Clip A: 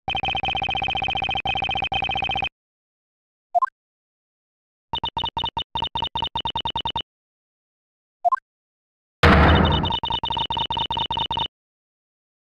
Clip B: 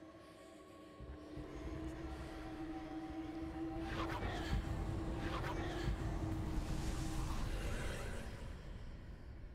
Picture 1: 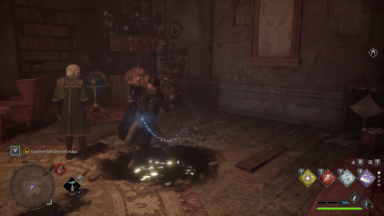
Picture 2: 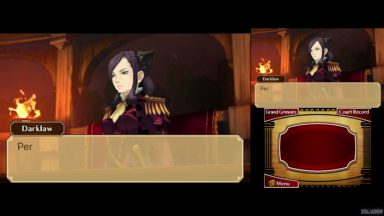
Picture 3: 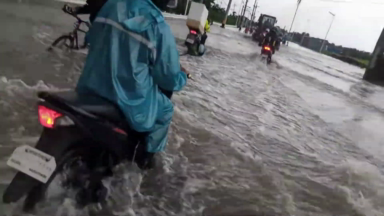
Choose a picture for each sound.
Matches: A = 2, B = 1